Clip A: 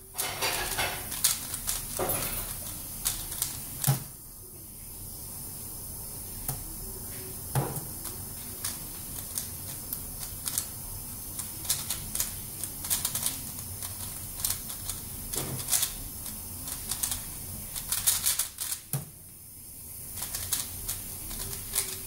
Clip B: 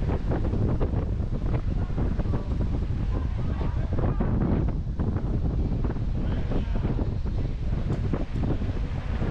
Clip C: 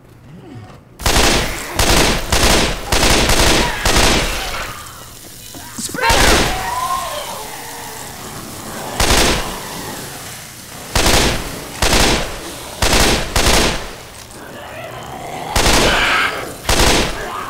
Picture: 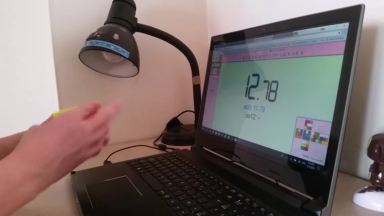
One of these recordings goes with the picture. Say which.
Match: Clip A